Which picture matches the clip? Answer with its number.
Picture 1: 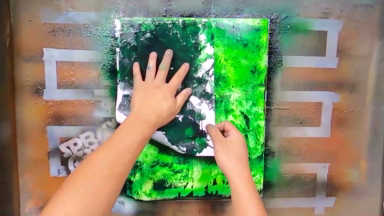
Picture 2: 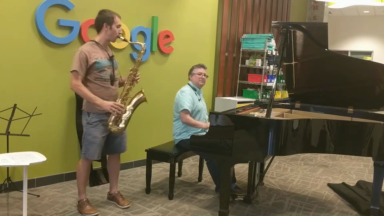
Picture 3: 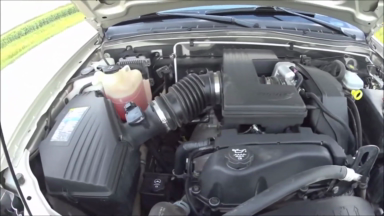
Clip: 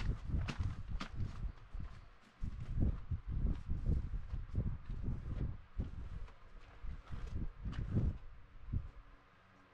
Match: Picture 1